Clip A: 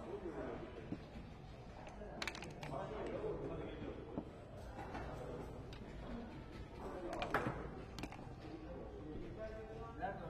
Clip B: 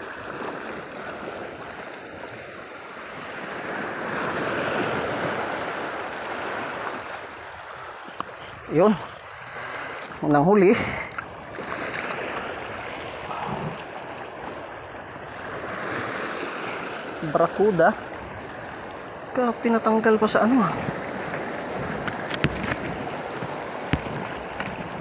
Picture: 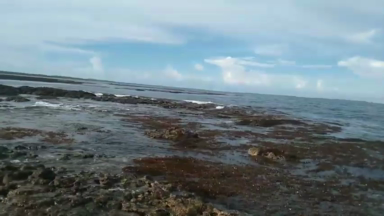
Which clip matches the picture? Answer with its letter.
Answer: B